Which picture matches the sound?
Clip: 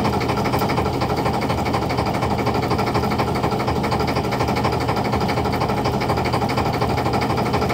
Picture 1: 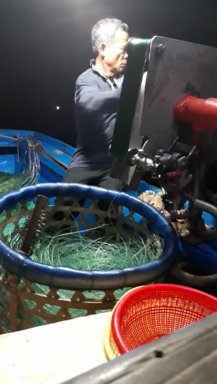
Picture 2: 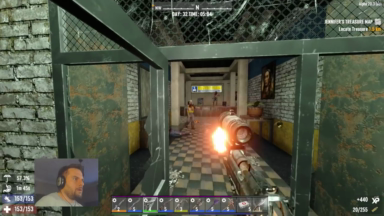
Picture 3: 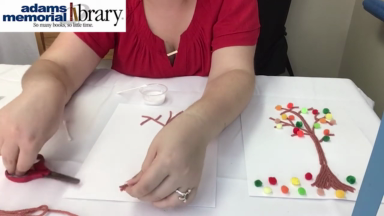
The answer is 1